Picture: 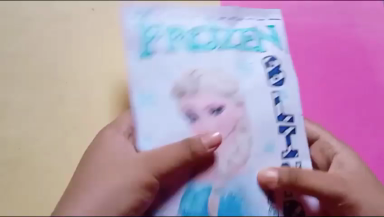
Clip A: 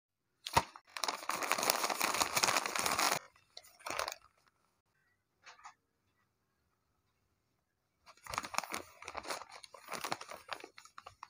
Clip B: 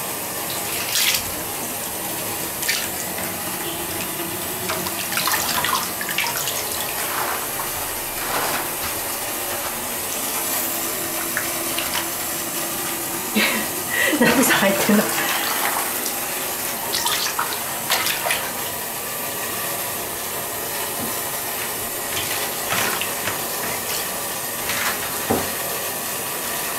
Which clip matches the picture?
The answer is A